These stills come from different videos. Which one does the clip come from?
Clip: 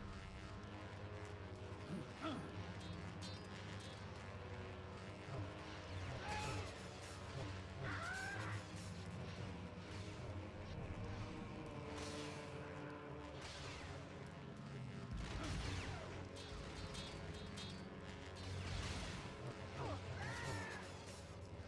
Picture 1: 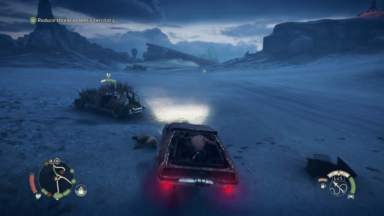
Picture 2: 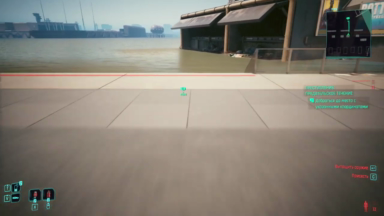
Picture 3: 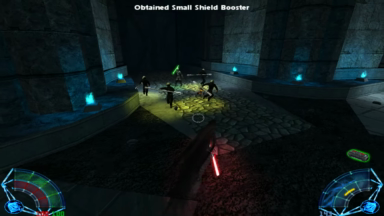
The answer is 3